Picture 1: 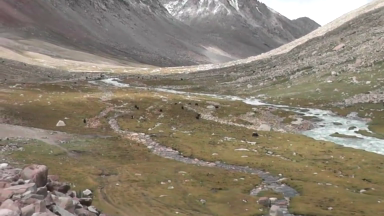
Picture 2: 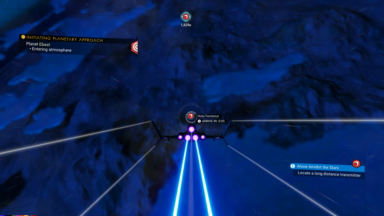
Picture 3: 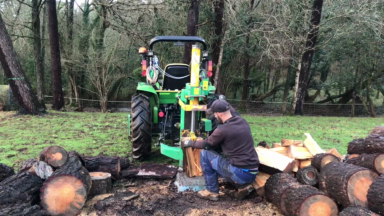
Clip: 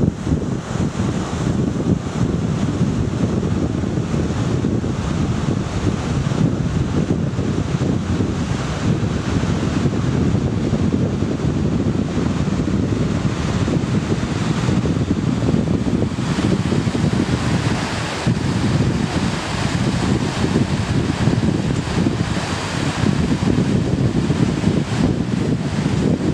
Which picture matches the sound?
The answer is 1